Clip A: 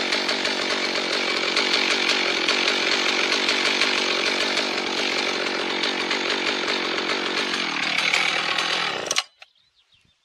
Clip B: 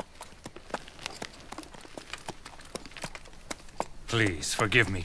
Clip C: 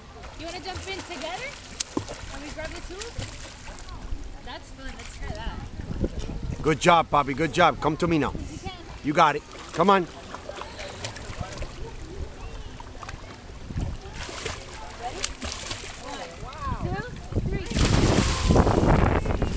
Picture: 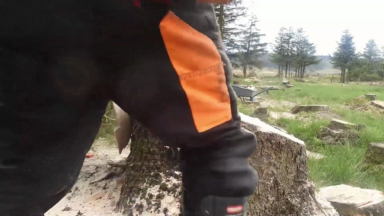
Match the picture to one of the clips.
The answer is A